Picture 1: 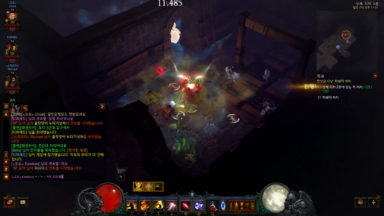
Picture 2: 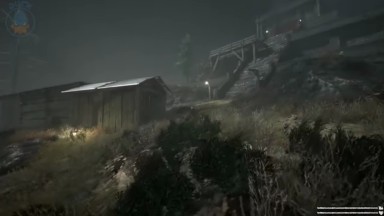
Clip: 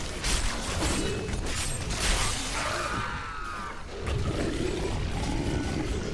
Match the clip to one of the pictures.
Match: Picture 1